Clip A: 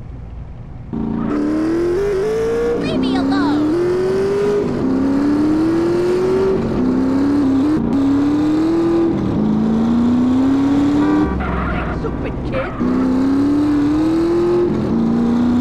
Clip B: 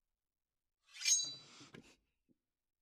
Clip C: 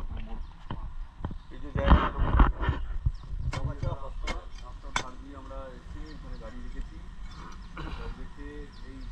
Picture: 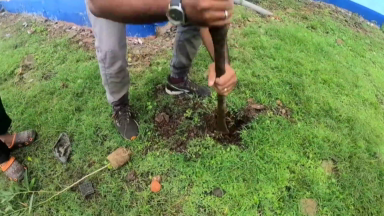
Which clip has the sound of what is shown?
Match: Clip C